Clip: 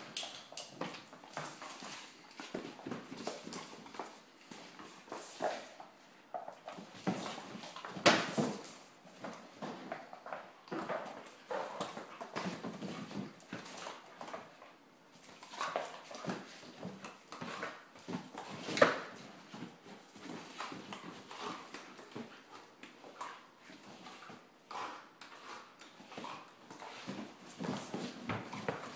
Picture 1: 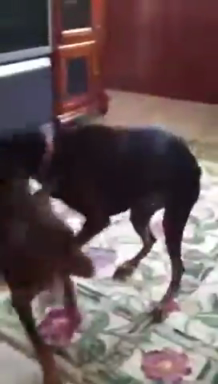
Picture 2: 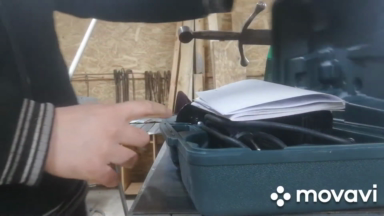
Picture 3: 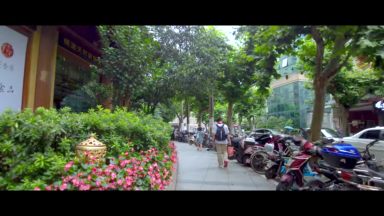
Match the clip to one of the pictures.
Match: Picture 1